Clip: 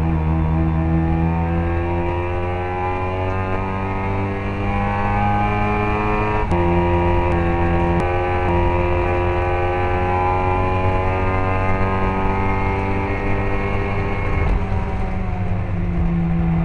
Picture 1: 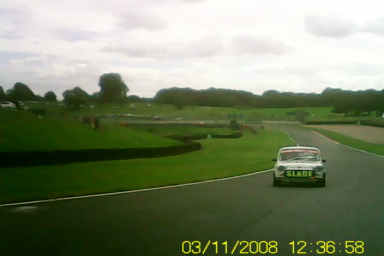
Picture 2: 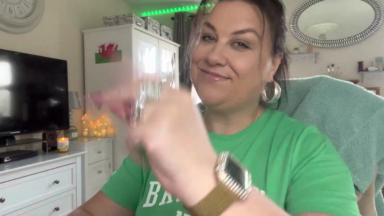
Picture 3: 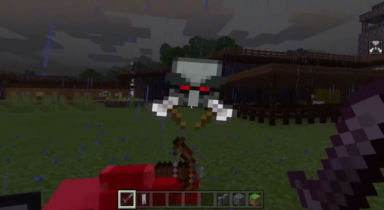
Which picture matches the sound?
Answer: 1